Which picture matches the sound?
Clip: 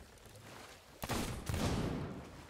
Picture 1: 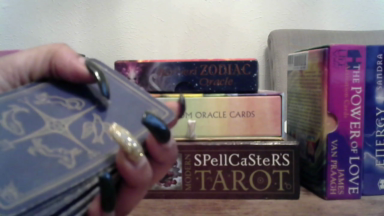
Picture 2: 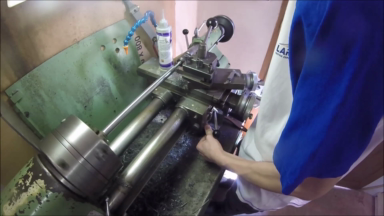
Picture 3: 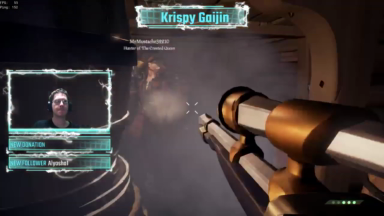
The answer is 3